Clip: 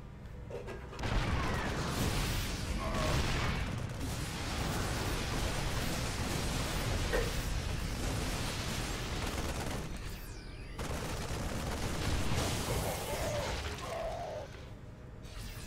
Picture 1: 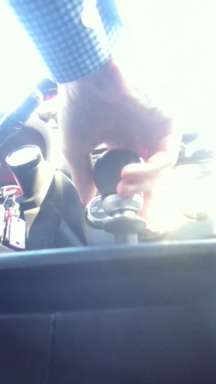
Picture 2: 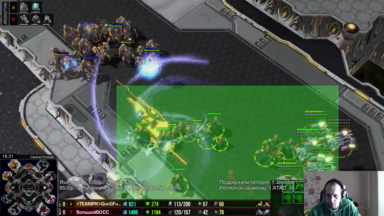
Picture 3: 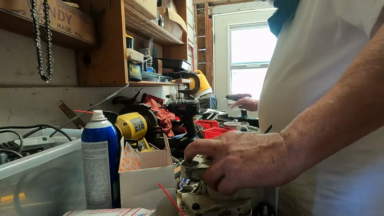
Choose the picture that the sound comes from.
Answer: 2